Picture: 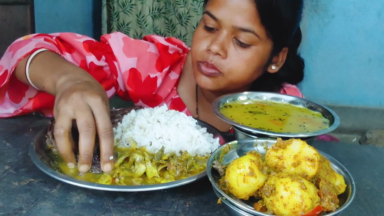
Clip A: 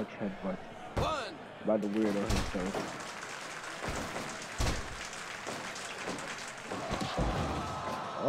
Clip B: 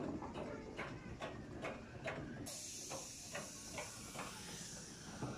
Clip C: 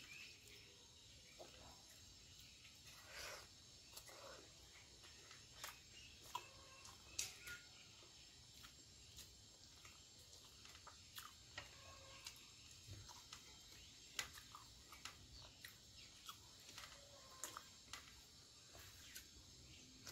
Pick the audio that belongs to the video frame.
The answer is C